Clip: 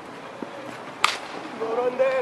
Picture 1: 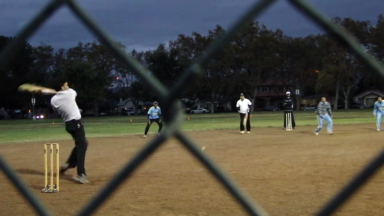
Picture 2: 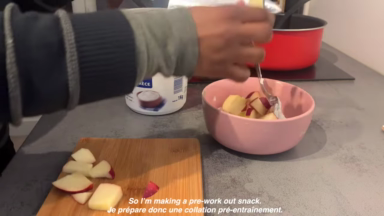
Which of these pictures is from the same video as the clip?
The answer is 1